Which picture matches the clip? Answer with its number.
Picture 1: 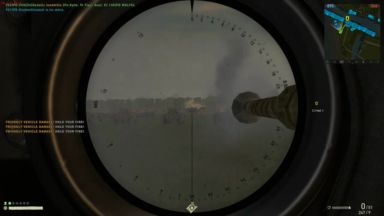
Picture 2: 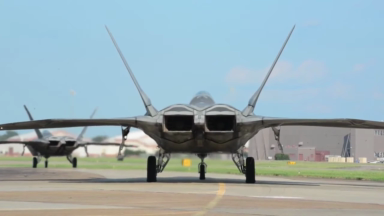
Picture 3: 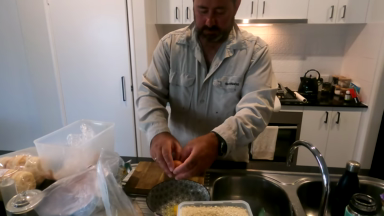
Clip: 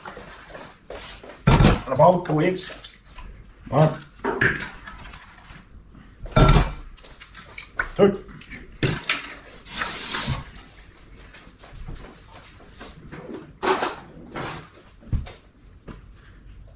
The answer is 3